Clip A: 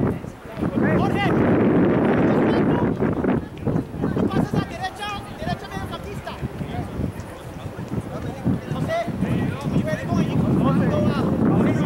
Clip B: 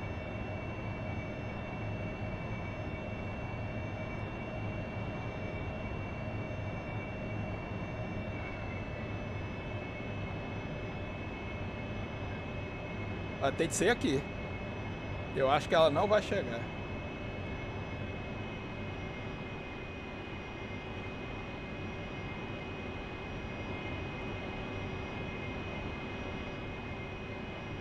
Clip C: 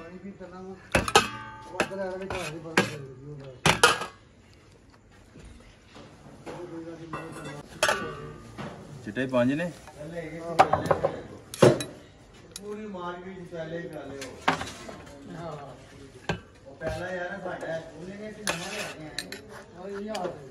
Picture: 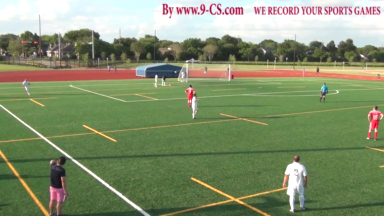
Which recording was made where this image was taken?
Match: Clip A